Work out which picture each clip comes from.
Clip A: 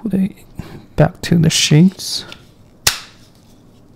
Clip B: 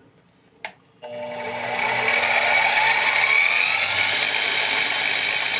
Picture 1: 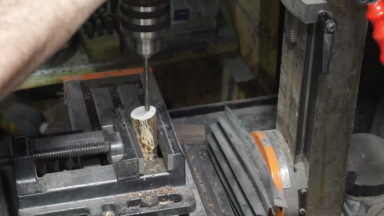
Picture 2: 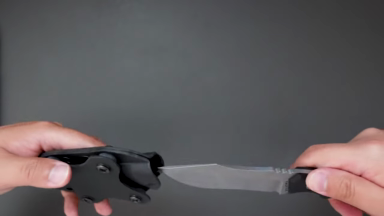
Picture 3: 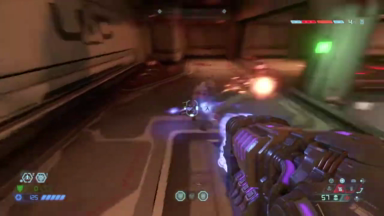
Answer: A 2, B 1